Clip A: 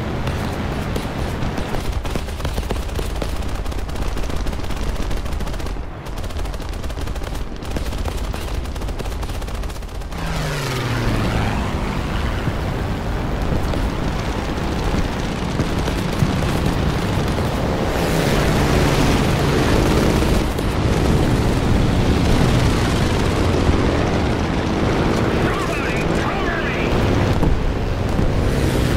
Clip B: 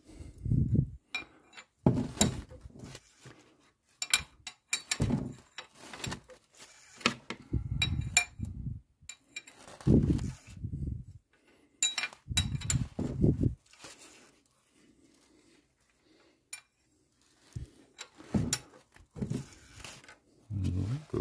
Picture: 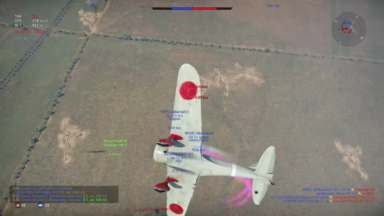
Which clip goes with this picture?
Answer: A